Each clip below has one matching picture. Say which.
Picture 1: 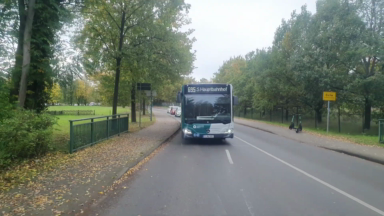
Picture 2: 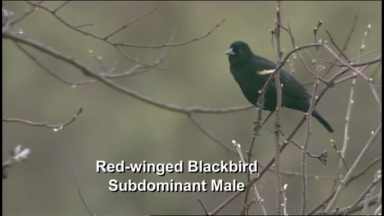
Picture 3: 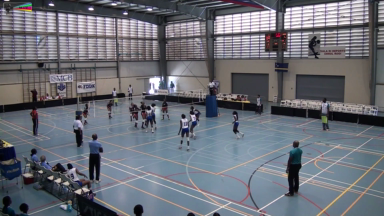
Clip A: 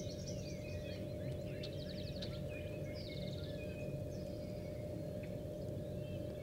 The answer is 2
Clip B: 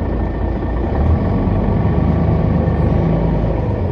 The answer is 1